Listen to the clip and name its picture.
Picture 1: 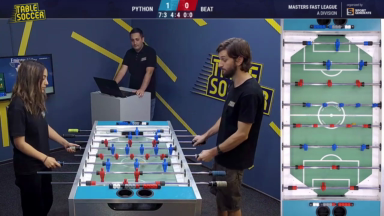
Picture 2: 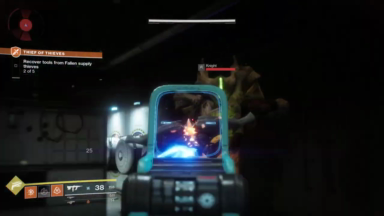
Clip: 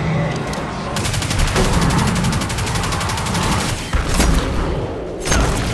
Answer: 2